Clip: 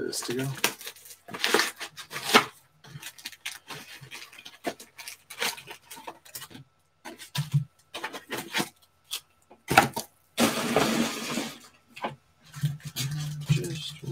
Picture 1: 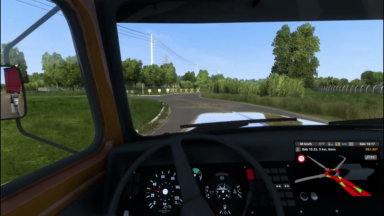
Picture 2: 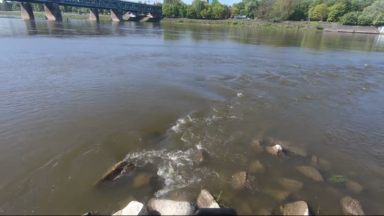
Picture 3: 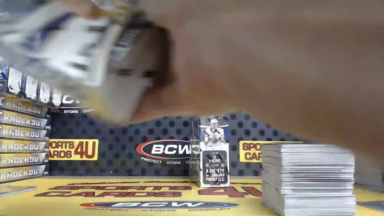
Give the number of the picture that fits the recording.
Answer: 3